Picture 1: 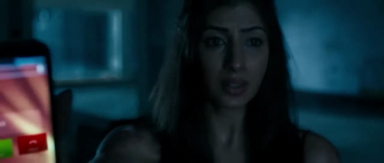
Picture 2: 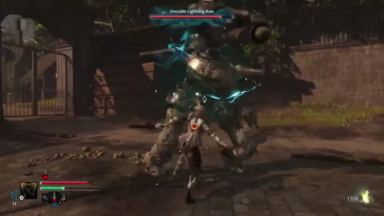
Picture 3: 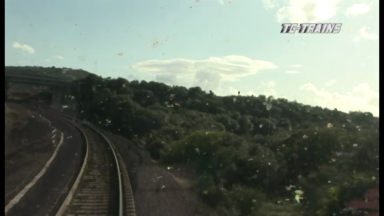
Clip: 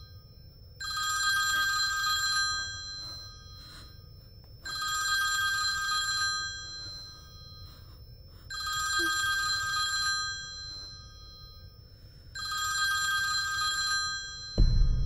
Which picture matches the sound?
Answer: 1